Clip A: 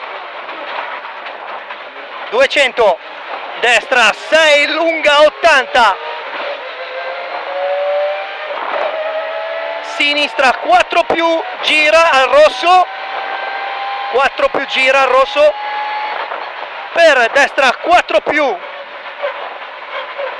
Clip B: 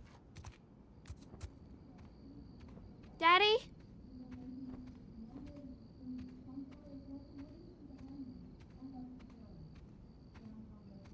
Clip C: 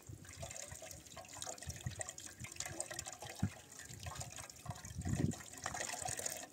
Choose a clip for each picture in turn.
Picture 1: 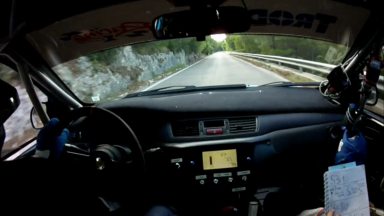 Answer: A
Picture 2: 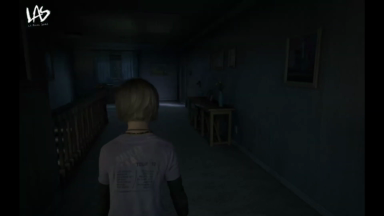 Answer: B